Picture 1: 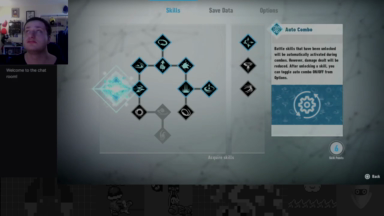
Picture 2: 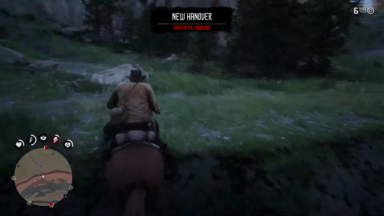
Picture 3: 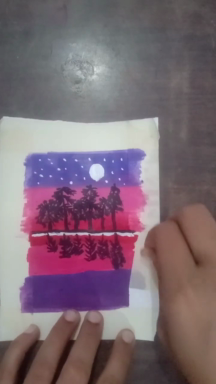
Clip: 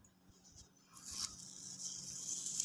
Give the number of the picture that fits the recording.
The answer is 3